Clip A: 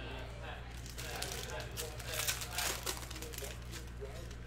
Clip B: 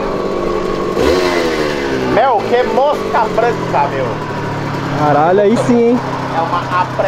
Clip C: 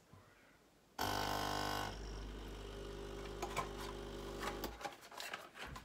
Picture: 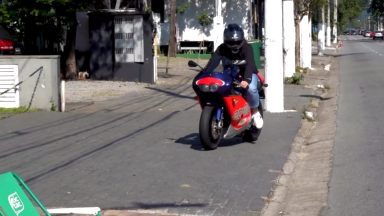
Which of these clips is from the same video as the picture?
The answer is B